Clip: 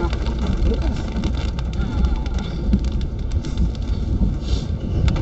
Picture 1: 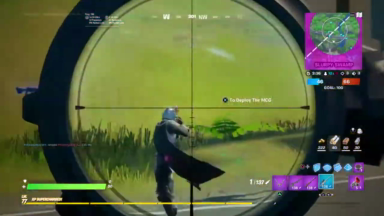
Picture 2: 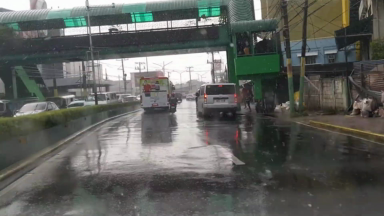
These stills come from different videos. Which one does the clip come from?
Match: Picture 2